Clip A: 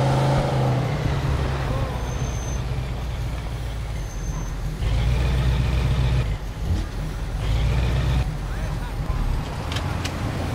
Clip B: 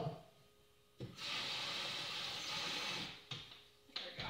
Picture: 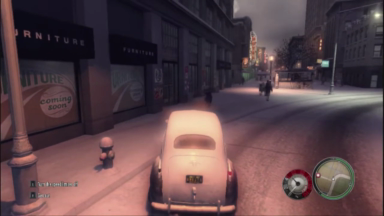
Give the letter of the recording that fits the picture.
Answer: A